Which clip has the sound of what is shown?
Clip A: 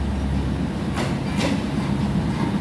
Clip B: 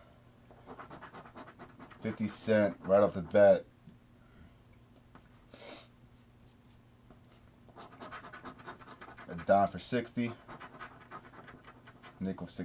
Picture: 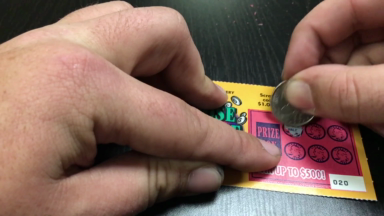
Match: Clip B